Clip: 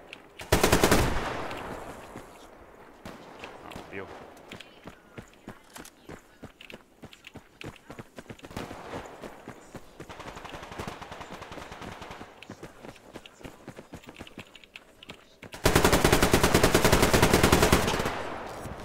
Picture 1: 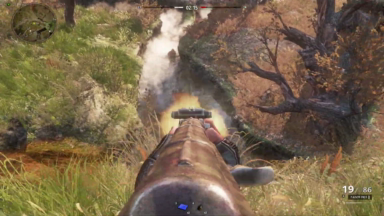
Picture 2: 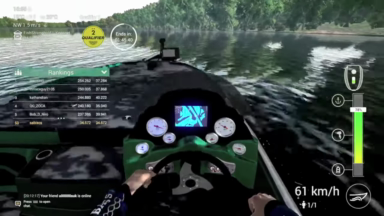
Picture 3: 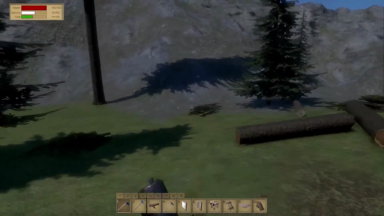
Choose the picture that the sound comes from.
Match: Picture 1